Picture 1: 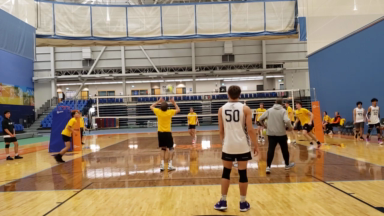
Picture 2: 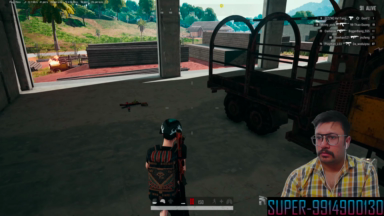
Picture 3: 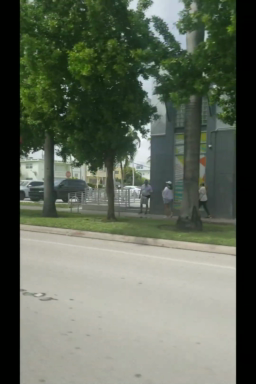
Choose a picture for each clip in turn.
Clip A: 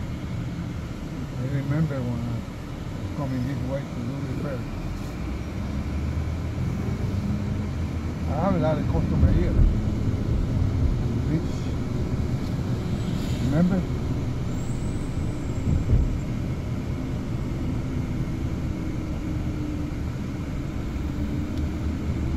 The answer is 3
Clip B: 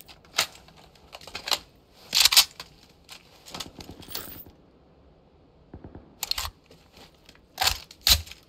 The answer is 2